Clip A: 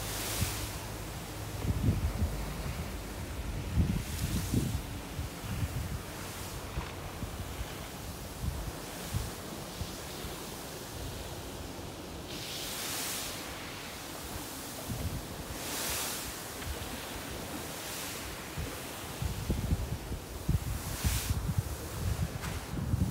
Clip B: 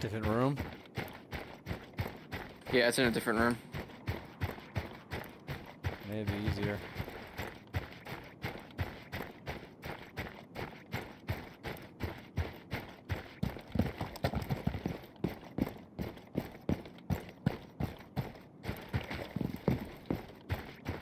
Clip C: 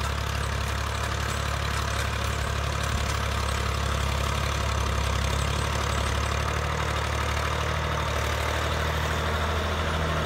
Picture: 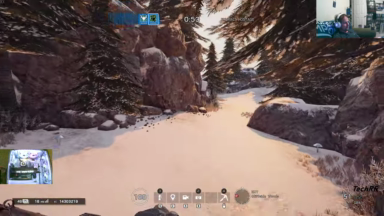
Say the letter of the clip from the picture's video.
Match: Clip B